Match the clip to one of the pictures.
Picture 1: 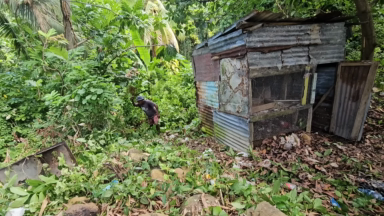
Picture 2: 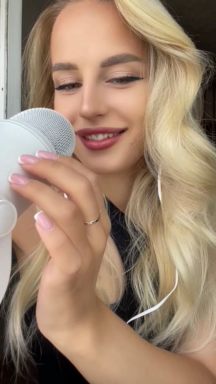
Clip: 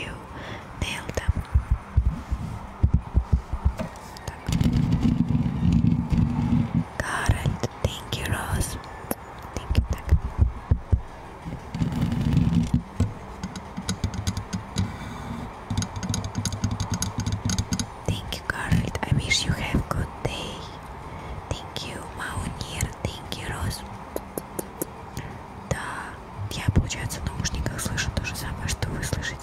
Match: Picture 2